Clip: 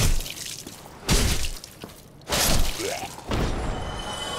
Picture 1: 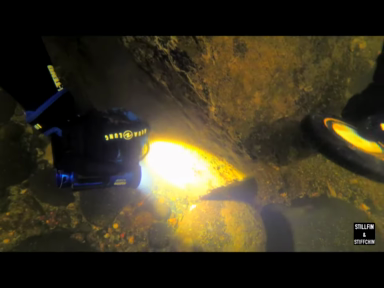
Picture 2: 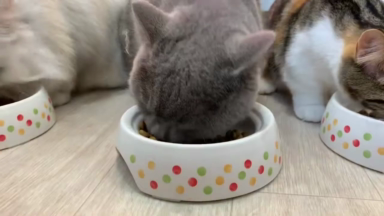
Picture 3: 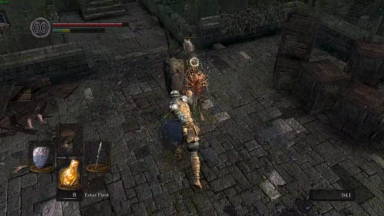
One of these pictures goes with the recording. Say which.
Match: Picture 3